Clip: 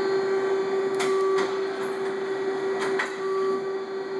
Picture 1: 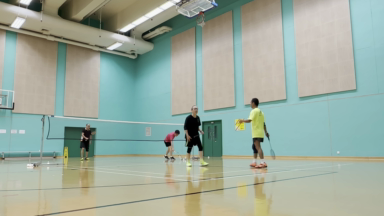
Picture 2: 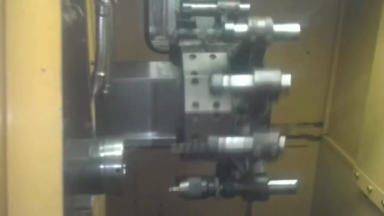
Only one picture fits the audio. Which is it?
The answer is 2